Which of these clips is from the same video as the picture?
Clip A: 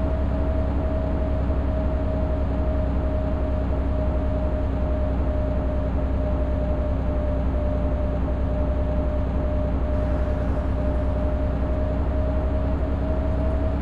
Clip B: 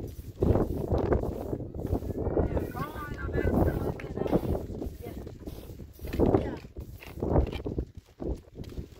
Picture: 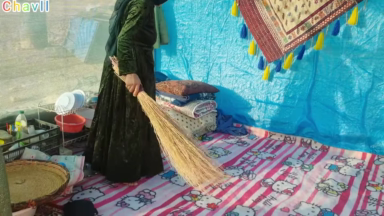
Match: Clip B